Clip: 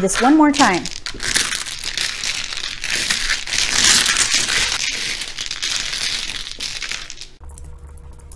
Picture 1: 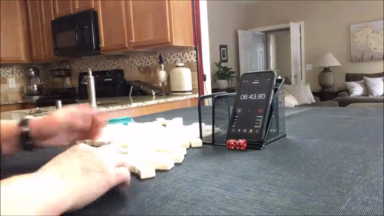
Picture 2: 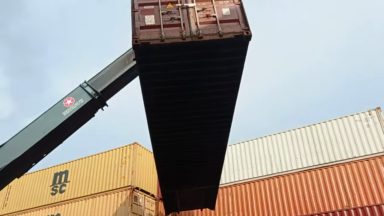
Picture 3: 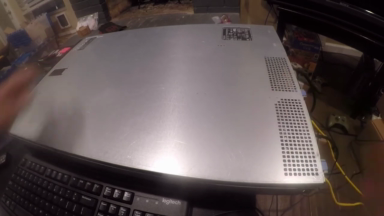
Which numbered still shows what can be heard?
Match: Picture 1